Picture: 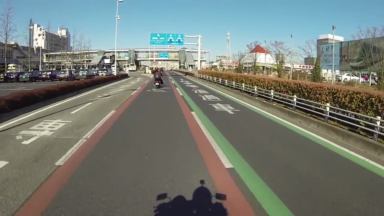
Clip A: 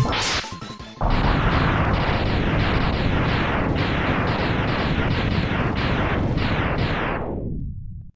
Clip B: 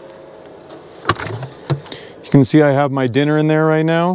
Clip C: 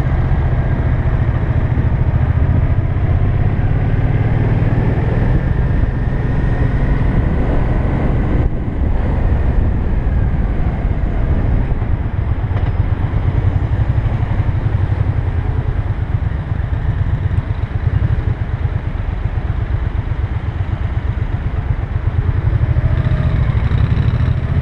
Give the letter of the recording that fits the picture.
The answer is C